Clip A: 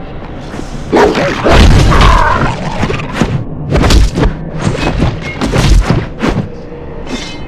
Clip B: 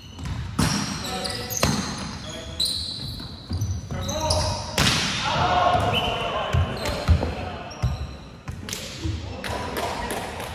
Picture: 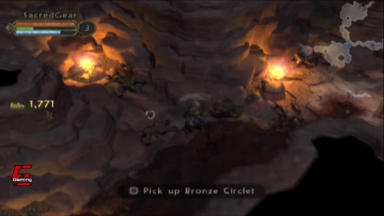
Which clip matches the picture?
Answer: A